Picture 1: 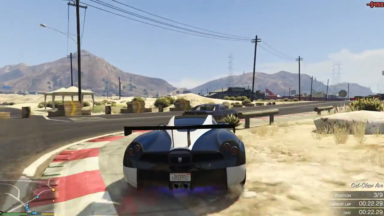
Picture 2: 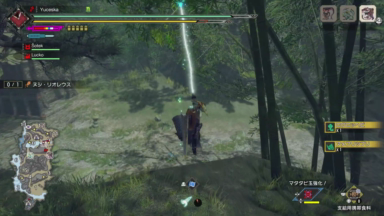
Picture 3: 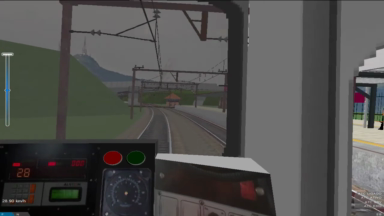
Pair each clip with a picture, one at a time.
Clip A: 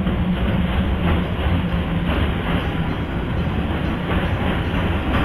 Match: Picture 3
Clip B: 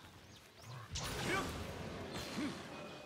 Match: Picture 2